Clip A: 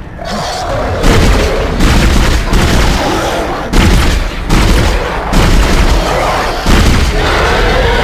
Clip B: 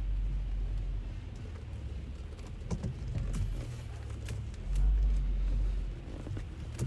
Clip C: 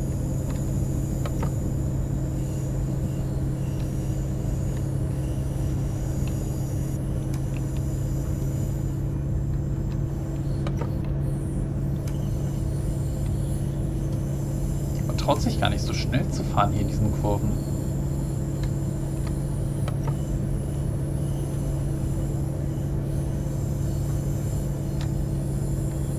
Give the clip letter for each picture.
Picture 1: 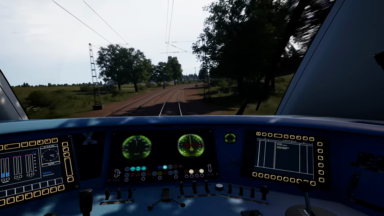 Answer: C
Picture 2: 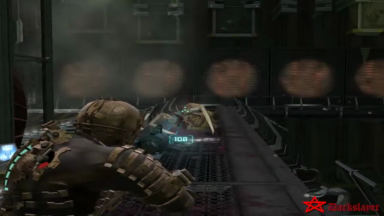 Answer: A